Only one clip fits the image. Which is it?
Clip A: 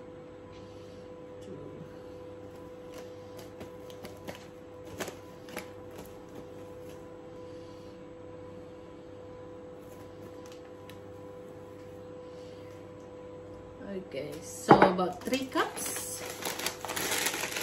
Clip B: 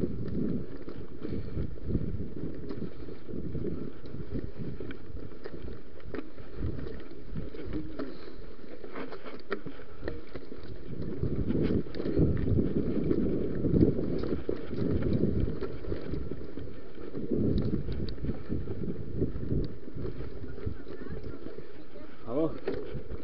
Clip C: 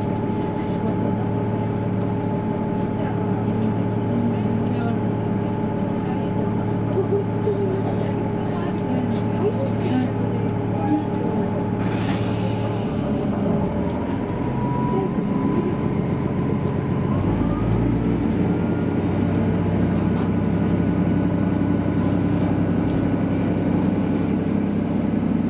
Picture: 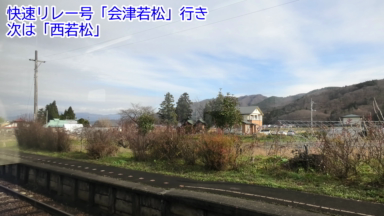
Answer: C